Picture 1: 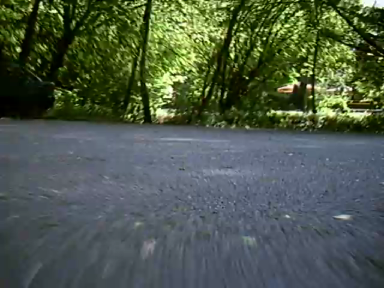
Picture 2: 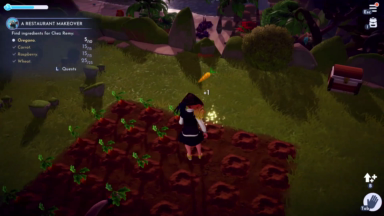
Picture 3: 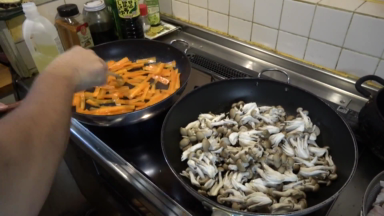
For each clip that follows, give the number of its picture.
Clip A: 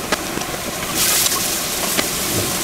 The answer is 3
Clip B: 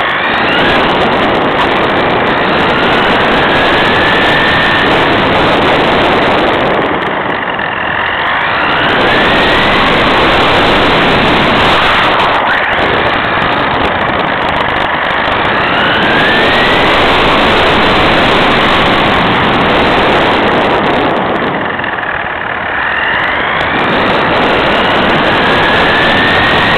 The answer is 1